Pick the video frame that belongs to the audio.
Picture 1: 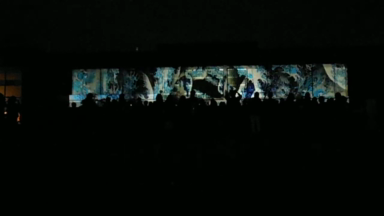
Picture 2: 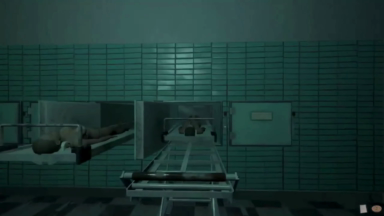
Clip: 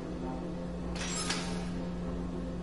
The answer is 2